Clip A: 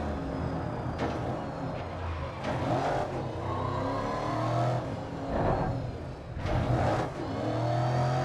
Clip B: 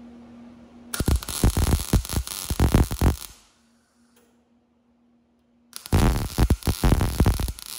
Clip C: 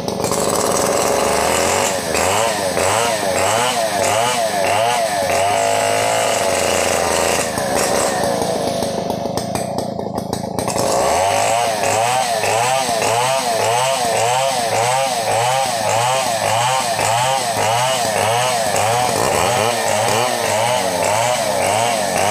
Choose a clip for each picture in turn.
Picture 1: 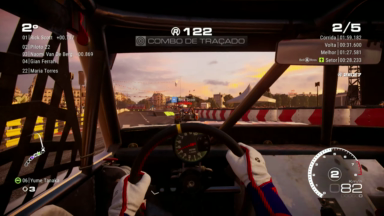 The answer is A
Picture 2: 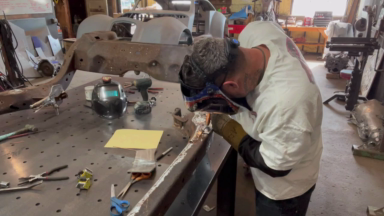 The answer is B